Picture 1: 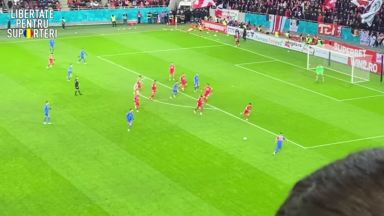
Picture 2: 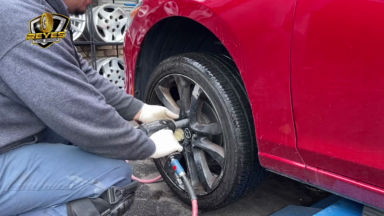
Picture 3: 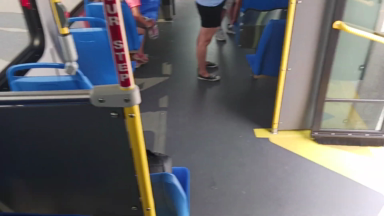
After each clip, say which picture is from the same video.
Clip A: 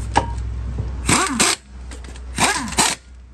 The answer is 2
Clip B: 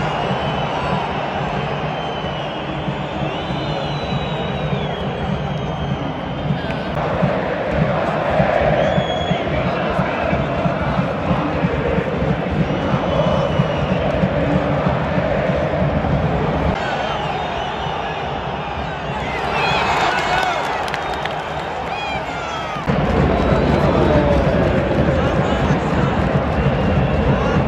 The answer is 1